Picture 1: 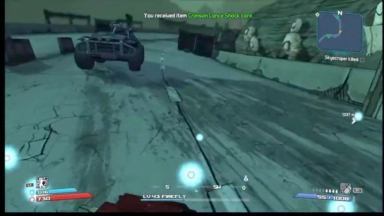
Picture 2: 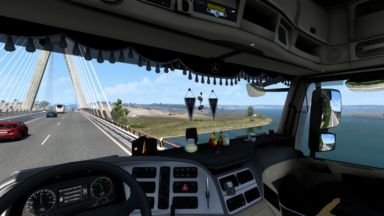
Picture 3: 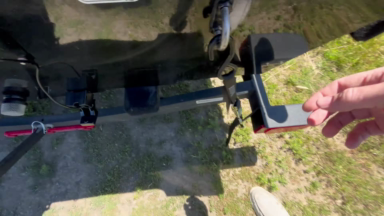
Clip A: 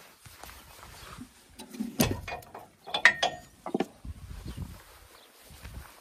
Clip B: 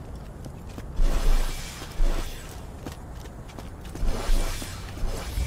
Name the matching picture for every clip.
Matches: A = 3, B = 1